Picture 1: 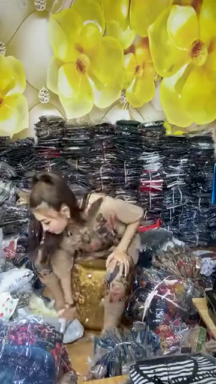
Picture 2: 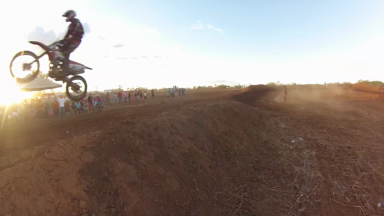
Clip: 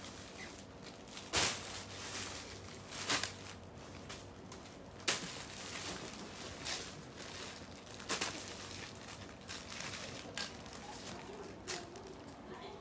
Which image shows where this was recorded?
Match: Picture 1